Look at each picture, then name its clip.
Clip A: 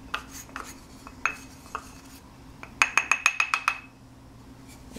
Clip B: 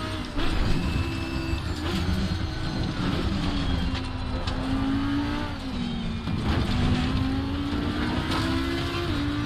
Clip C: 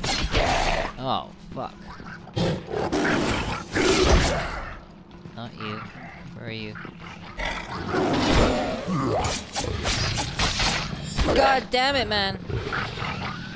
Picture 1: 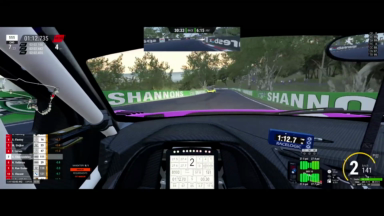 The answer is B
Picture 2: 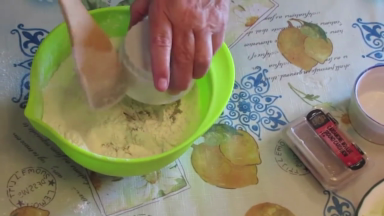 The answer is A